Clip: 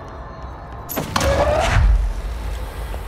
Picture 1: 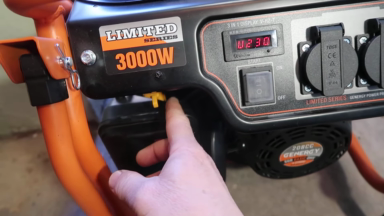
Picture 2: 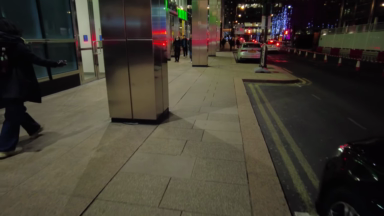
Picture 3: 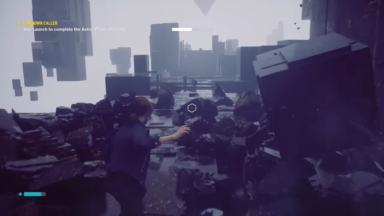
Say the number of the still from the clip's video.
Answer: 3